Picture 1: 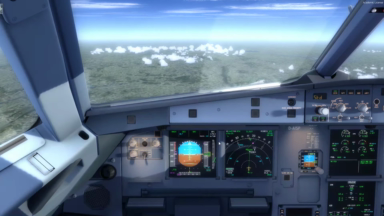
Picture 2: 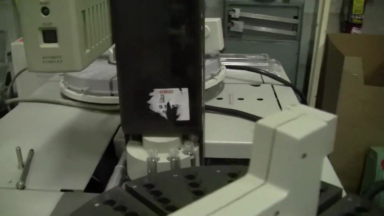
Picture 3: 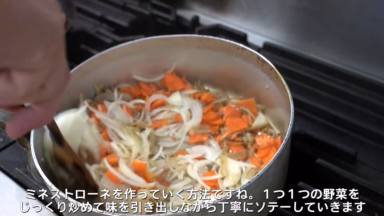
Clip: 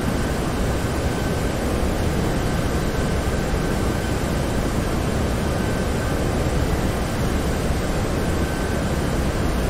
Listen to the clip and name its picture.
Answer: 1